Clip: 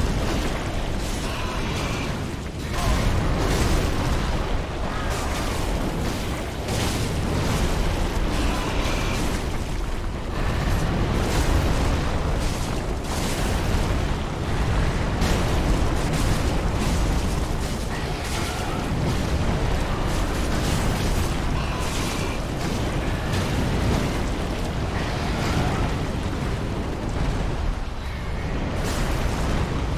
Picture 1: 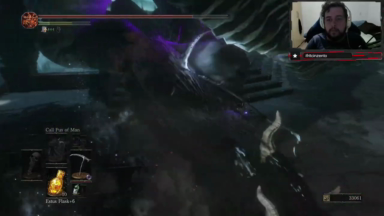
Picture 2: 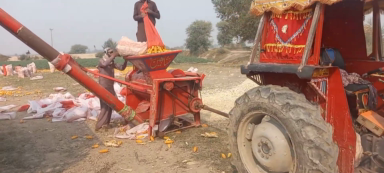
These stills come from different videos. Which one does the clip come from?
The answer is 1